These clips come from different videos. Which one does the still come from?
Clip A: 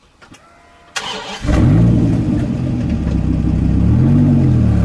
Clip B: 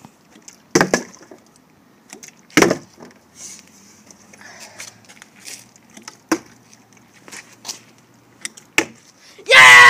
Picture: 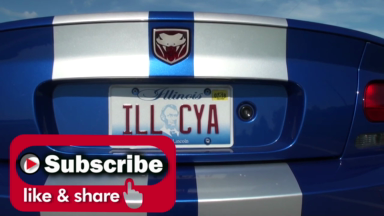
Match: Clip A